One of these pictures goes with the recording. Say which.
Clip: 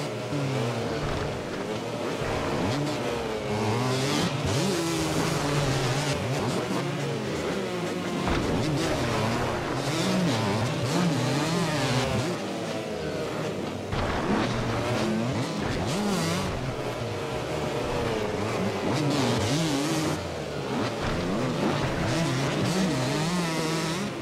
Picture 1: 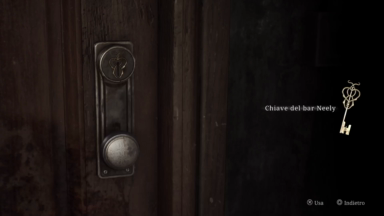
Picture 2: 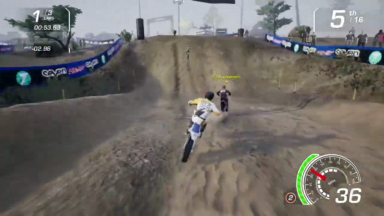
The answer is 2